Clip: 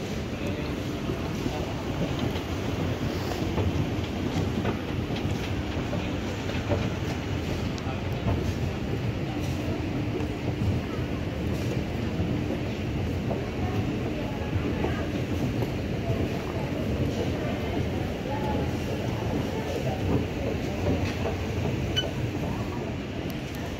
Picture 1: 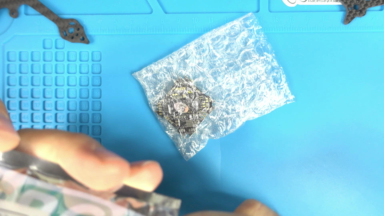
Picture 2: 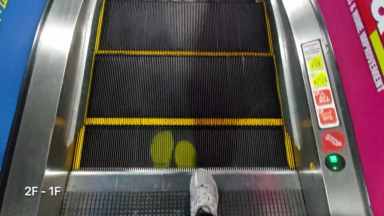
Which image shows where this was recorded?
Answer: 2